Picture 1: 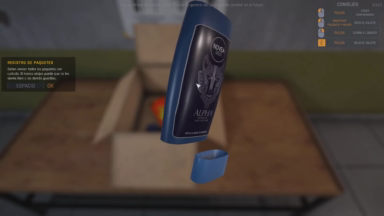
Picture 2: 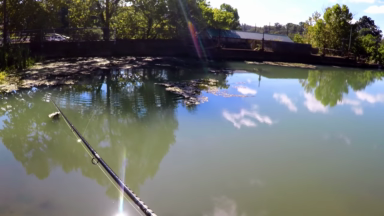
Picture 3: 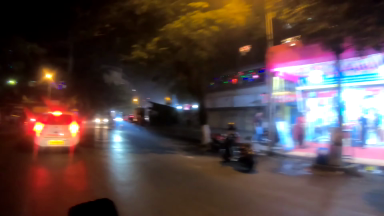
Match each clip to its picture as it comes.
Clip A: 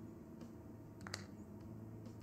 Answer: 1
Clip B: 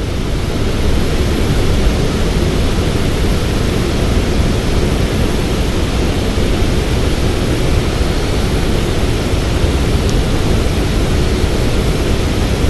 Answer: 2